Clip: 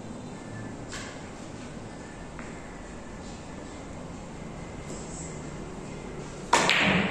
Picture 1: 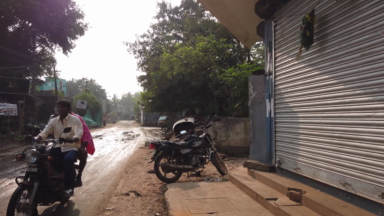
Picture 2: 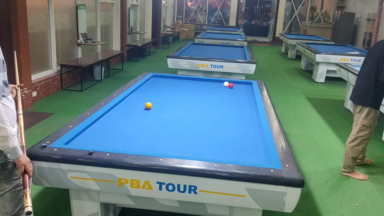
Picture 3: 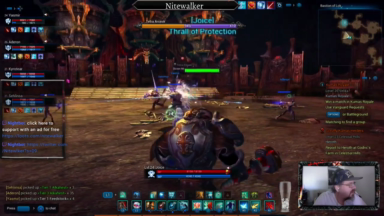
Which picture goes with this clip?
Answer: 2